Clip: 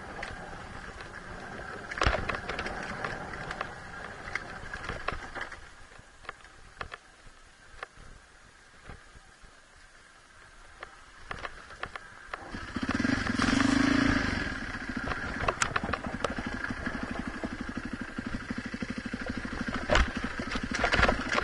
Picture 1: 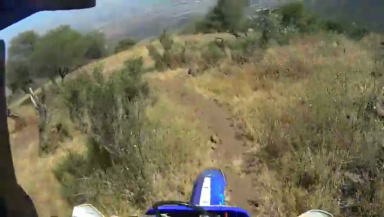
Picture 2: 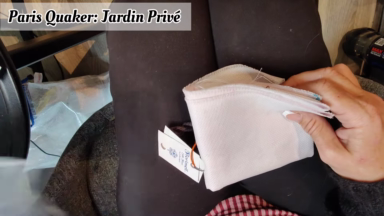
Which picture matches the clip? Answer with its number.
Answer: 1